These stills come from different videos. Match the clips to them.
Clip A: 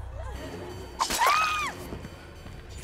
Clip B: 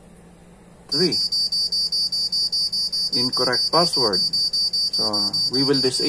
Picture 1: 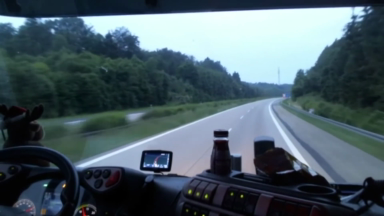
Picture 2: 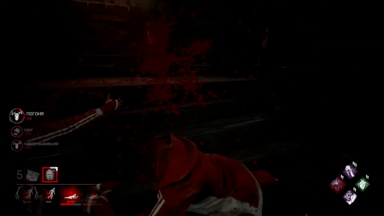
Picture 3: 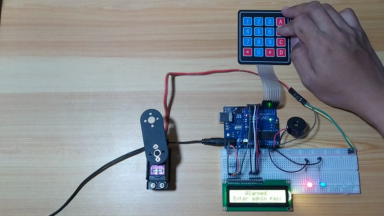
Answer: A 2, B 3